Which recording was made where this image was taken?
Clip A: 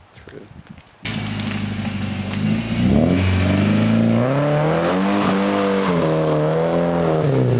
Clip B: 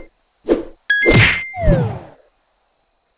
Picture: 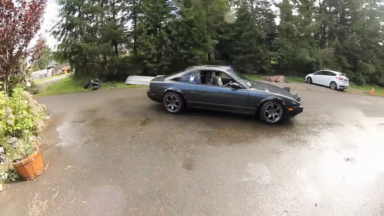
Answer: A